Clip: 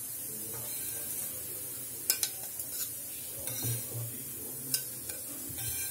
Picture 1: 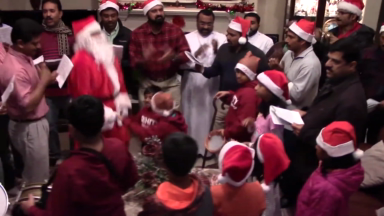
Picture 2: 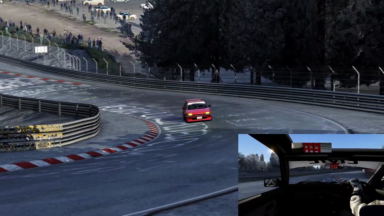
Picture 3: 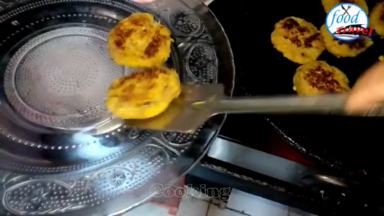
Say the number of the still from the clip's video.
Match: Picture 3